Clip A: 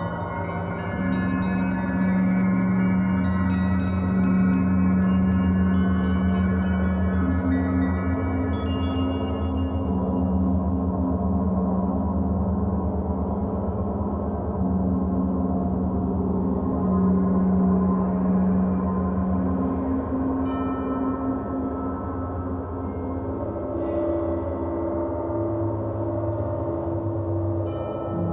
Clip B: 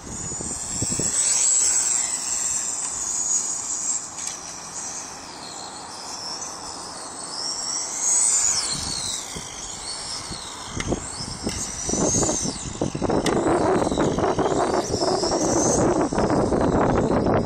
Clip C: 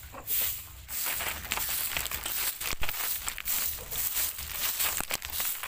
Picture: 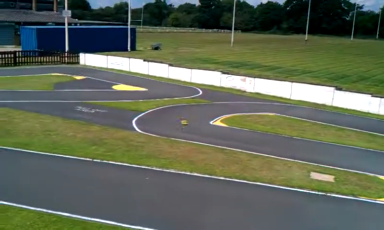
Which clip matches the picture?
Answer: B